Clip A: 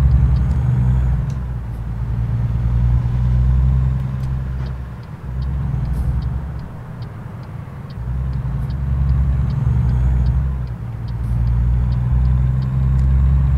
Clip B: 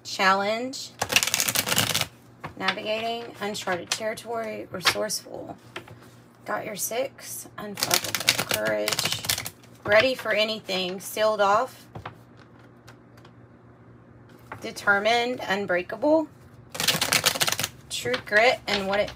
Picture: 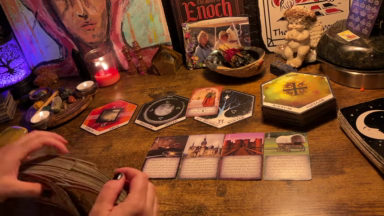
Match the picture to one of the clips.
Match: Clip B